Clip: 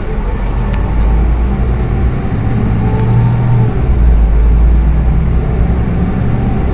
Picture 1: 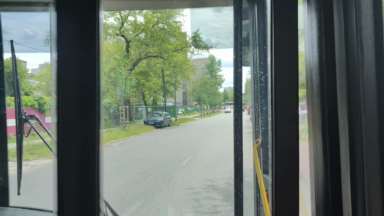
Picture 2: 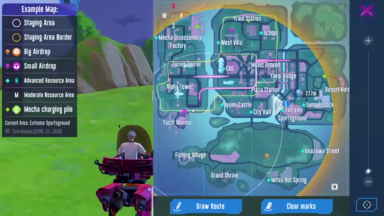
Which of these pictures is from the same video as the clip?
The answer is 1